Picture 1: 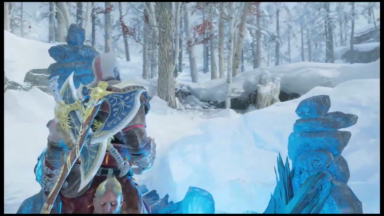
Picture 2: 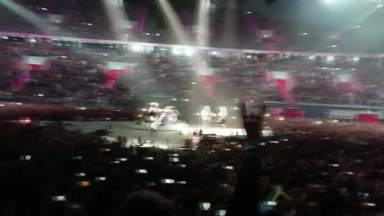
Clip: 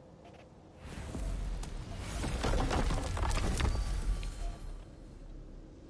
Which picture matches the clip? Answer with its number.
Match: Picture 1